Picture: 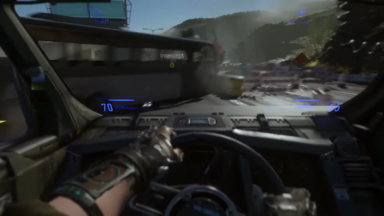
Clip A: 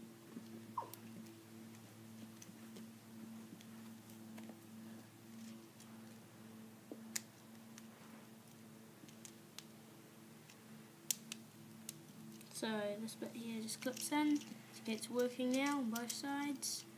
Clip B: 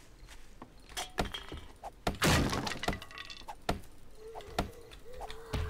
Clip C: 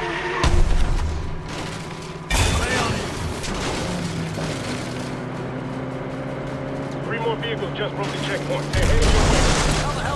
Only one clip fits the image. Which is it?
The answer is C